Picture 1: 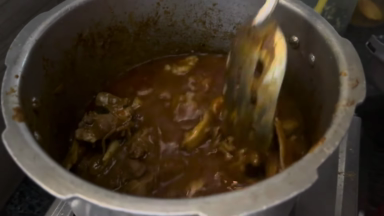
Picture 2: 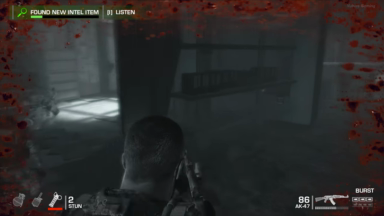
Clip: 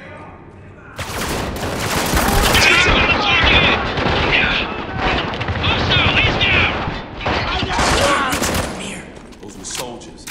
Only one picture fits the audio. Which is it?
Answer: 2